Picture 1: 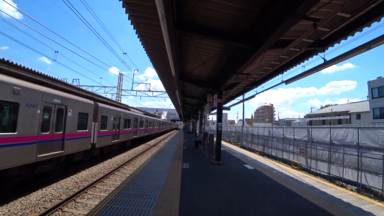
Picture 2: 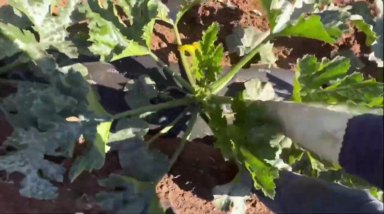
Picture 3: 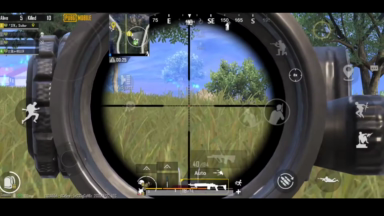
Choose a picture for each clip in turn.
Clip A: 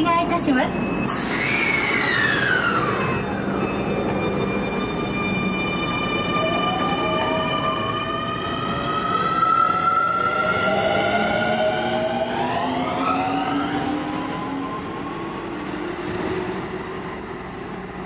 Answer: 1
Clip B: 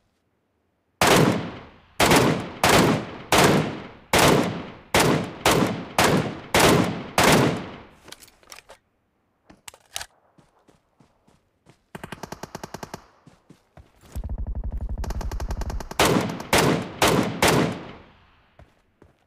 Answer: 3